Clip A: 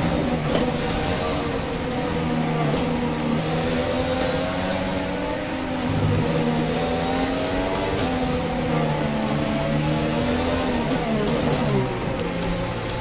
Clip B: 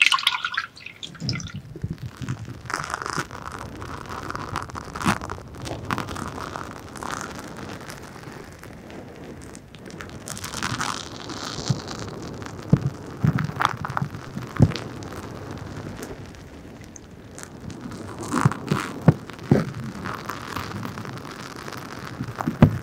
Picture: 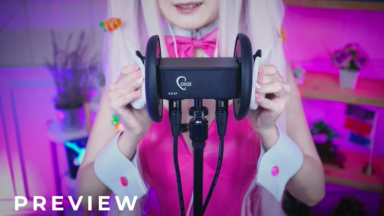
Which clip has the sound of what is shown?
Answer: B